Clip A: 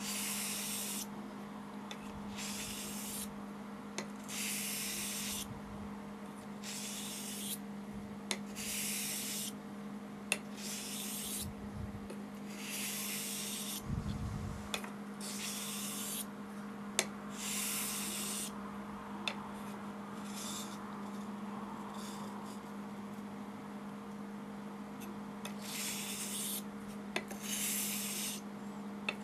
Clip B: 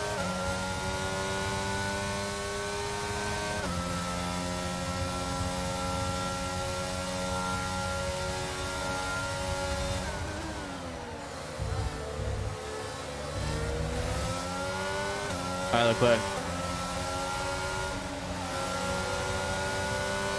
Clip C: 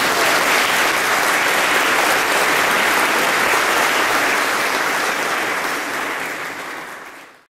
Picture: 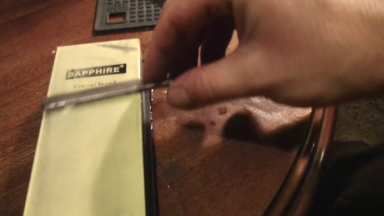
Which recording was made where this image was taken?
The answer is A